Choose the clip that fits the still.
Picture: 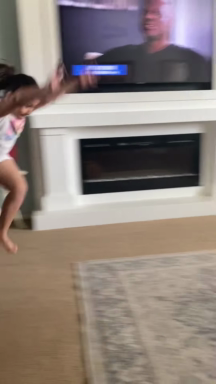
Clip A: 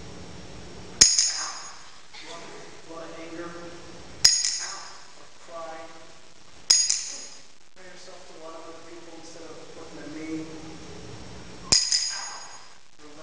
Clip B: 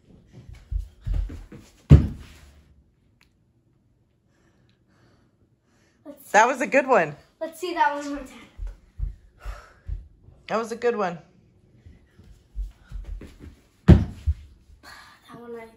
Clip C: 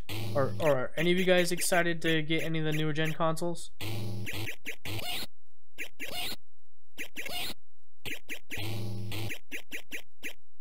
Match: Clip B